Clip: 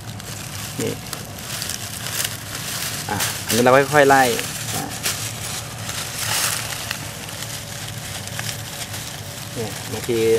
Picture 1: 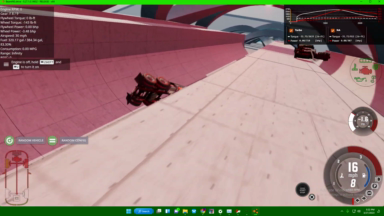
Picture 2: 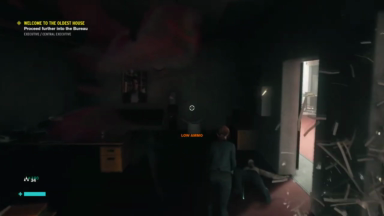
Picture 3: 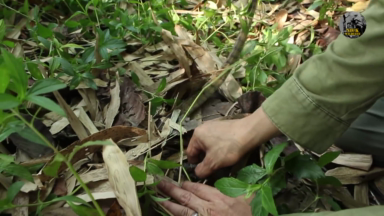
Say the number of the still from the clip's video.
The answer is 3